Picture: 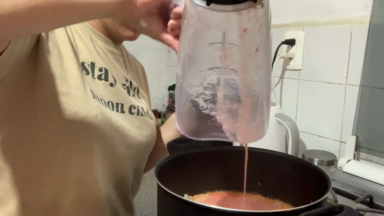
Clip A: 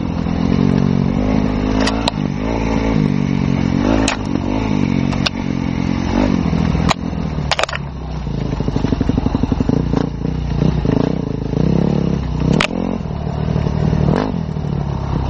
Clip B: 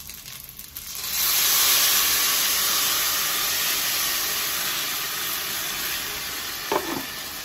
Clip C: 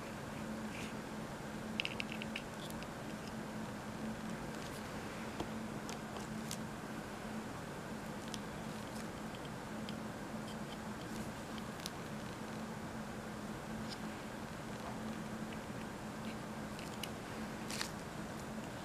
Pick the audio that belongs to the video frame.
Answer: B